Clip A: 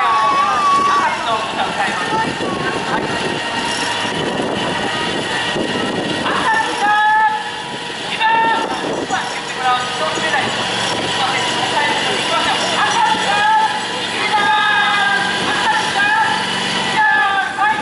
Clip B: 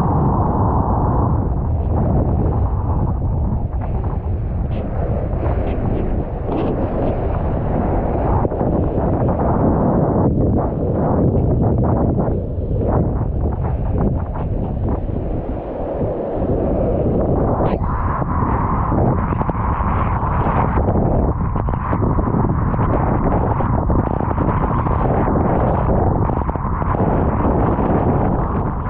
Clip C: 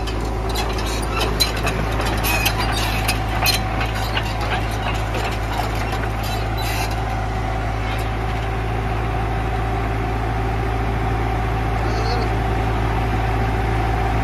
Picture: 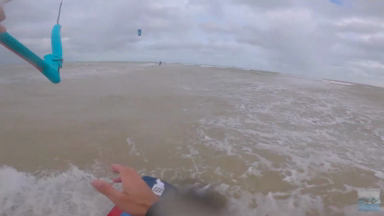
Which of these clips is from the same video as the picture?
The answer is B